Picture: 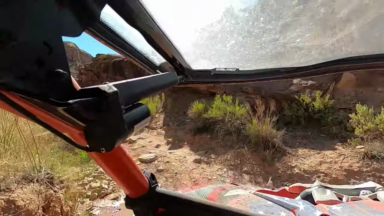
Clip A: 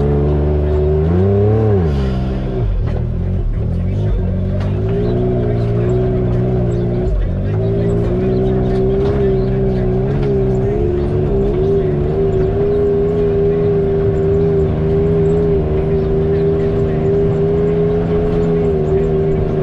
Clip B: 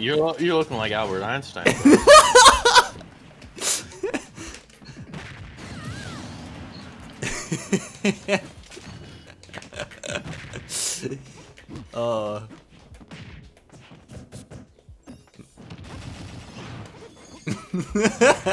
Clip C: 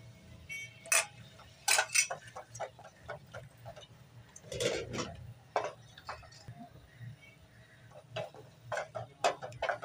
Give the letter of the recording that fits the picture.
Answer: A